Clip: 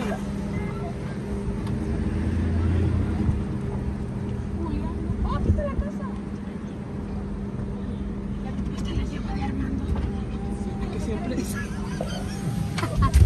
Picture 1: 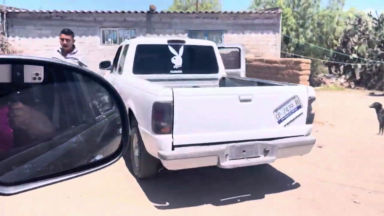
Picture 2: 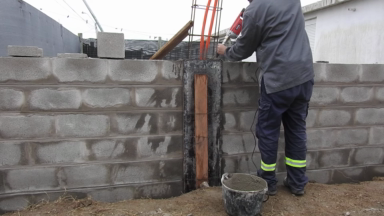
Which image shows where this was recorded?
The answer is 1